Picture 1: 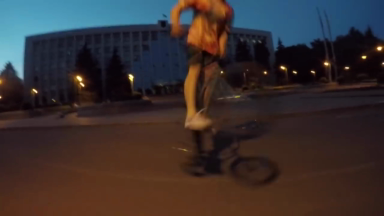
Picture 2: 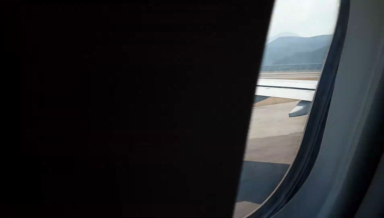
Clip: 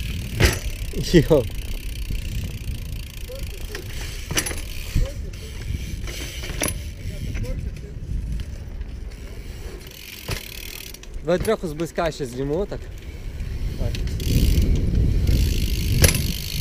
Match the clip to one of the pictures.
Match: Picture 1